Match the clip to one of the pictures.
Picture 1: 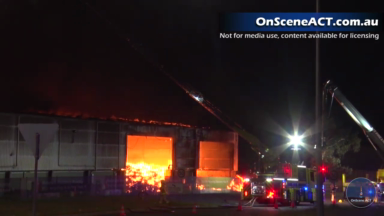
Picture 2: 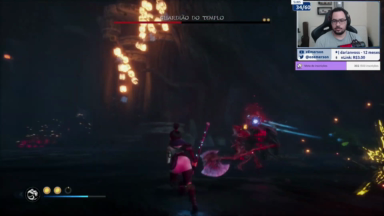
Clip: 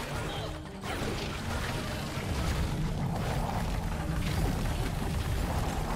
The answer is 2